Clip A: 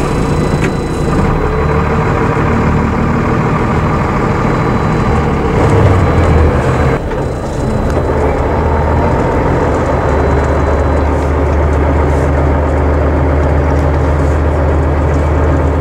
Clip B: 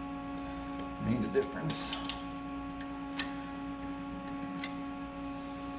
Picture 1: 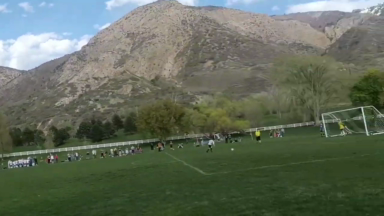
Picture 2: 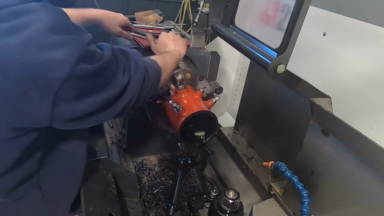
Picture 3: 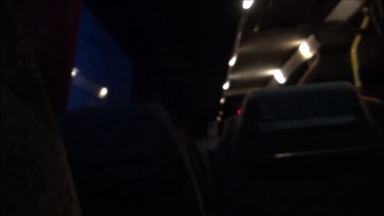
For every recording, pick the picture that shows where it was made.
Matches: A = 3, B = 2